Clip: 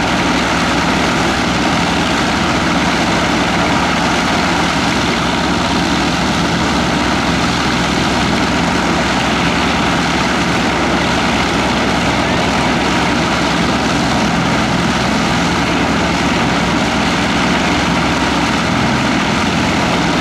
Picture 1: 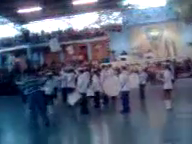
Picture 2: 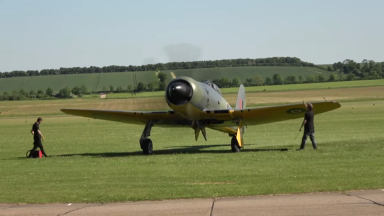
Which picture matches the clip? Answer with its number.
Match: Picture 2